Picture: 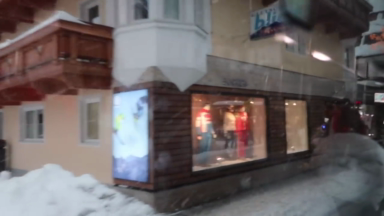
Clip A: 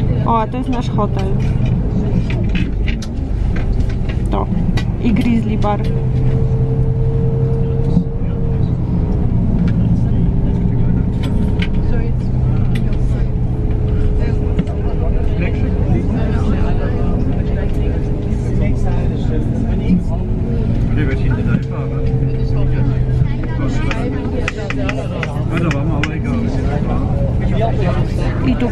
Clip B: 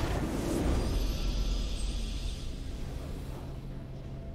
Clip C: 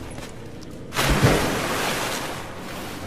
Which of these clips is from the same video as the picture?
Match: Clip A